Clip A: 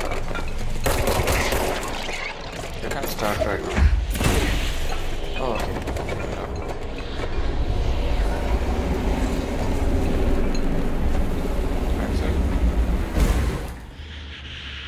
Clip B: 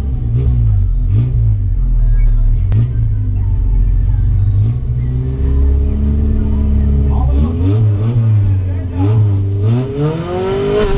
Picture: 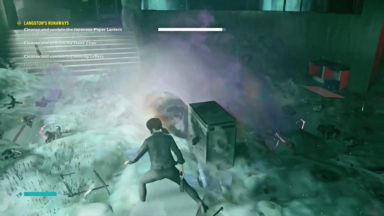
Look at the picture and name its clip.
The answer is A